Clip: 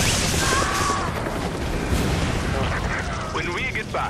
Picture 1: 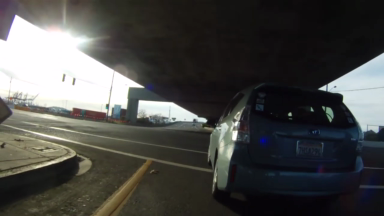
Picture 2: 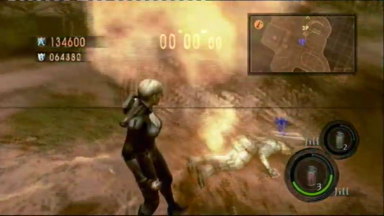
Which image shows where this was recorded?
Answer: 2